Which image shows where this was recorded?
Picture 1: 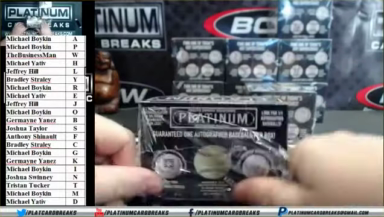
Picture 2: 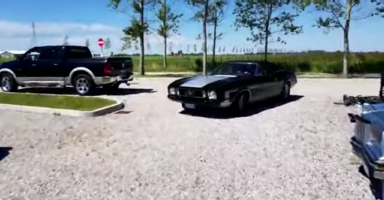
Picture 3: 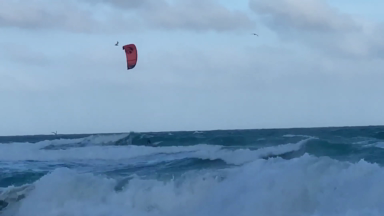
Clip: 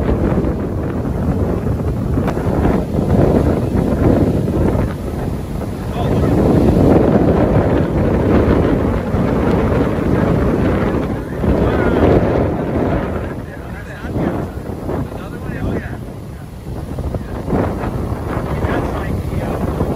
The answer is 3